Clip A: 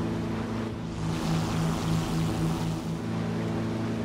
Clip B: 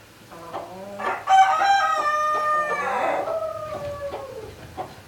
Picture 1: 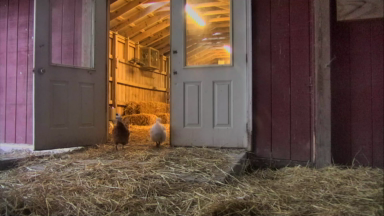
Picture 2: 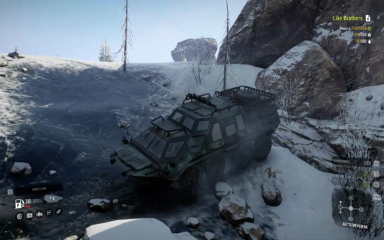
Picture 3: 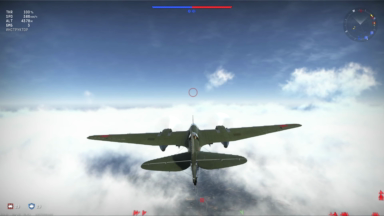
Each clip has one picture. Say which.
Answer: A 3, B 1